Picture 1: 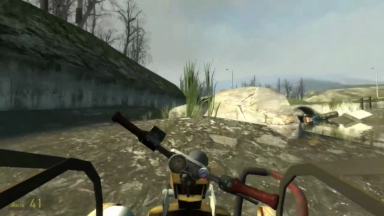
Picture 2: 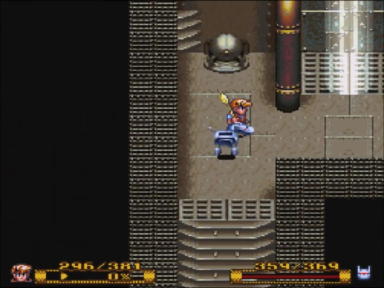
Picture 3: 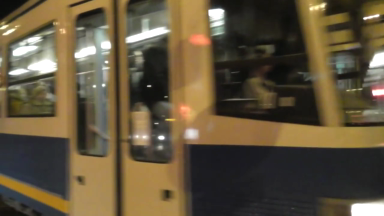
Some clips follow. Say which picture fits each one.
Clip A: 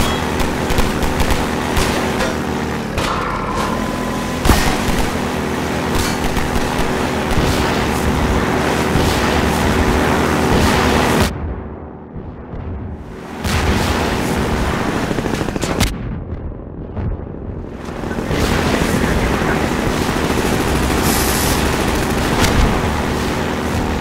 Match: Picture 1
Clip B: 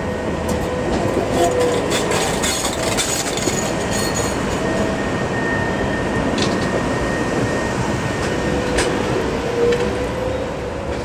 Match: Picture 3